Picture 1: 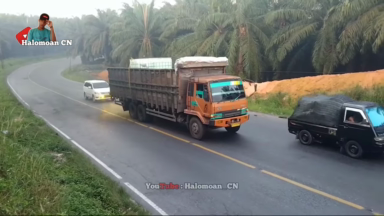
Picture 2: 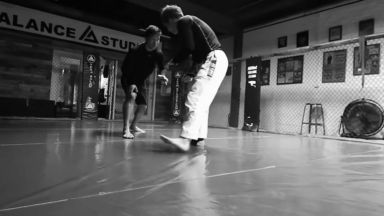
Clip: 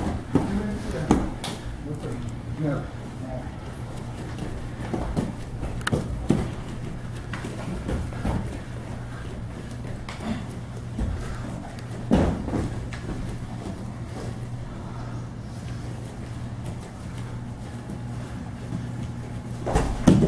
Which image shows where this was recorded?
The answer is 2